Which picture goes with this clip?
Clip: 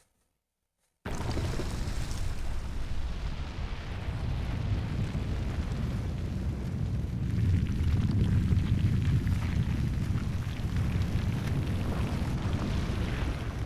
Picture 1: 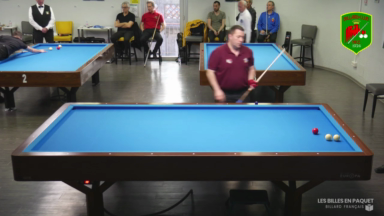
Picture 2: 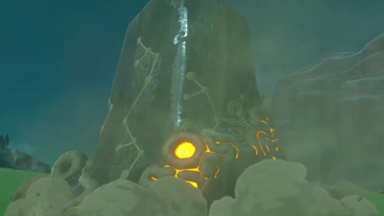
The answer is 2